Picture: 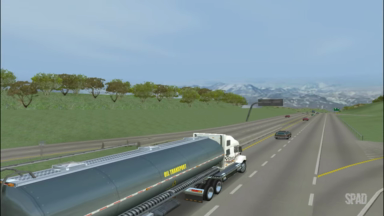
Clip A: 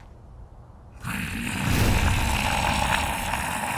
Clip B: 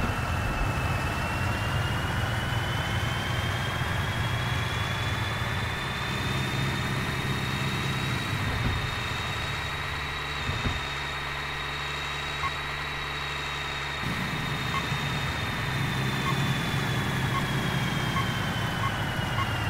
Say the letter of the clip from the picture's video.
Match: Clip B